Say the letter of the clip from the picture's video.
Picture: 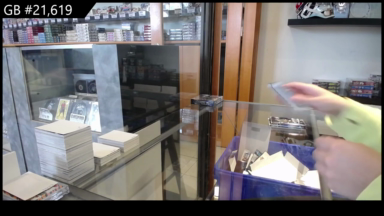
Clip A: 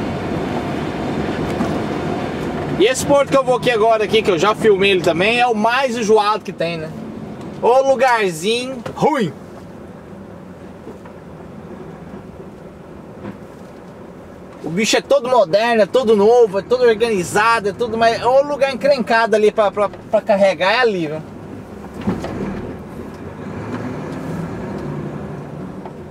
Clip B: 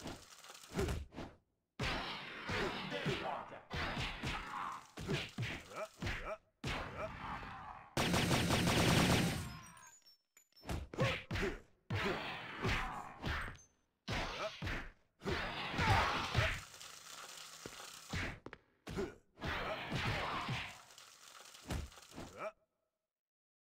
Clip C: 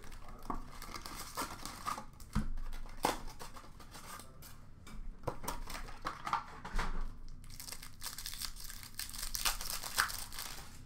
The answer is C